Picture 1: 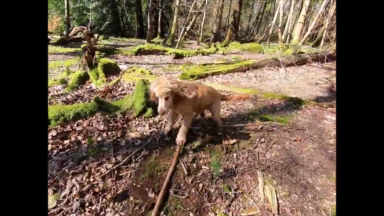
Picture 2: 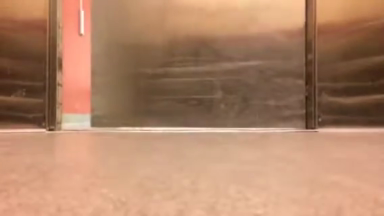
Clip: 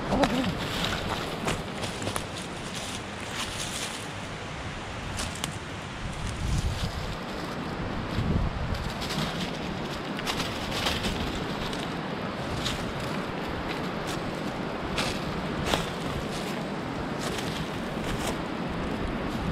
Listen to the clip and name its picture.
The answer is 1